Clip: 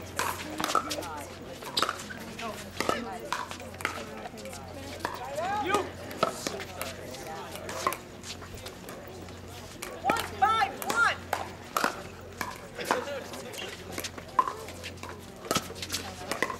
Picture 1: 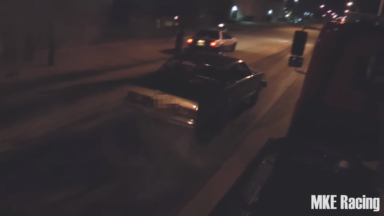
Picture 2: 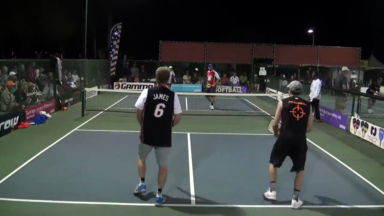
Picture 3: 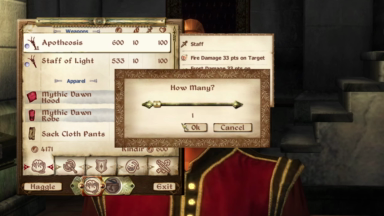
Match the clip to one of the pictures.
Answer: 2